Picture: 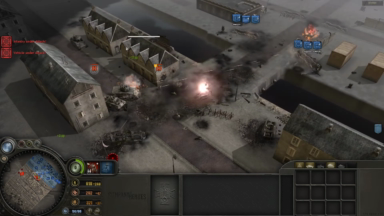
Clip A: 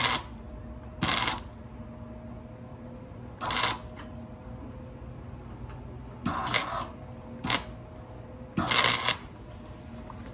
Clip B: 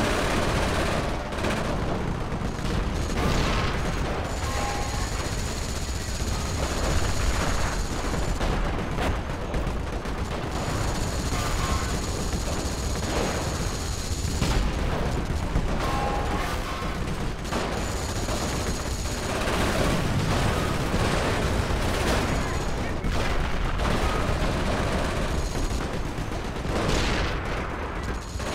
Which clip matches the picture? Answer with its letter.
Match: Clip B